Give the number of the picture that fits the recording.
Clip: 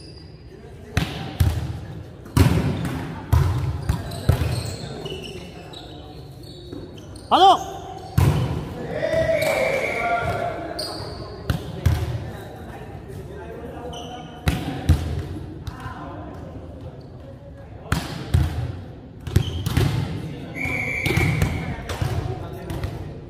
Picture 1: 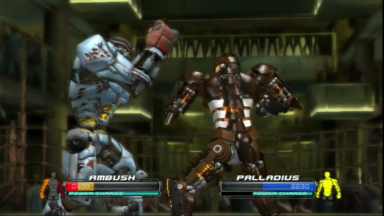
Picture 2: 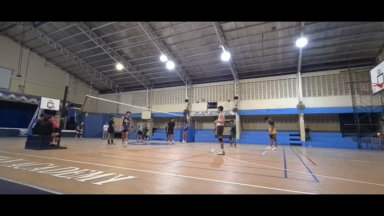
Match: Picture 2